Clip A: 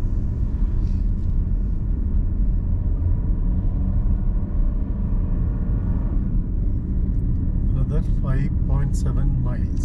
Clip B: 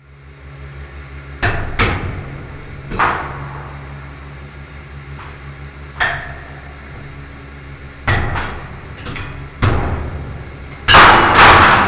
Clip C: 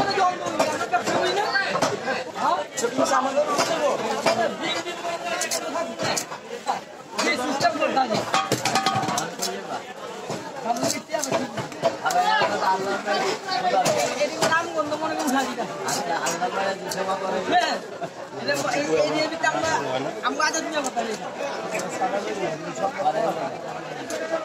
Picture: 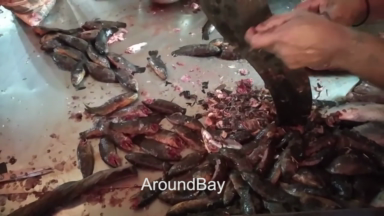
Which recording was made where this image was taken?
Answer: C